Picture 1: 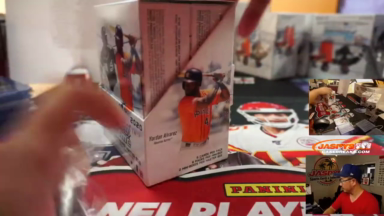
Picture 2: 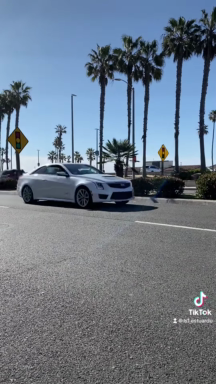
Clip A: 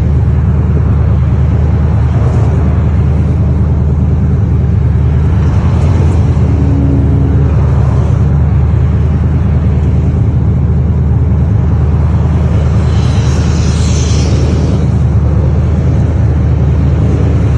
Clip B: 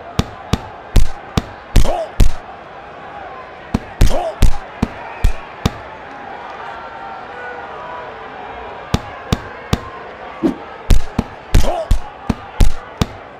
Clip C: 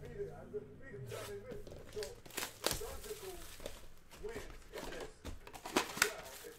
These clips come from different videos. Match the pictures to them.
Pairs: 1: C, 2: A